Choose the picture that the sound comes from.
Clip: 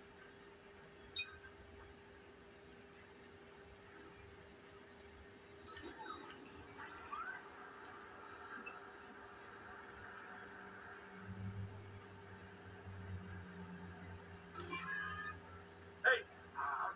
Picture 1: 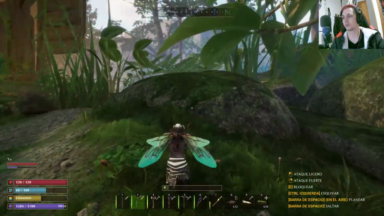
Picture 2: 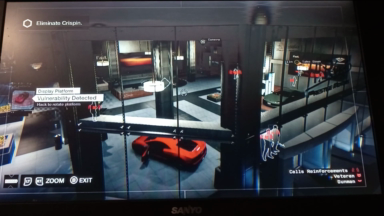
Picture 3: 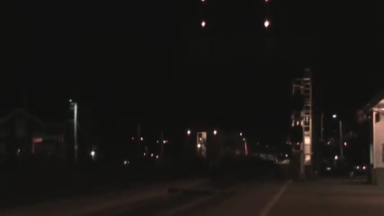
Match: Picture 2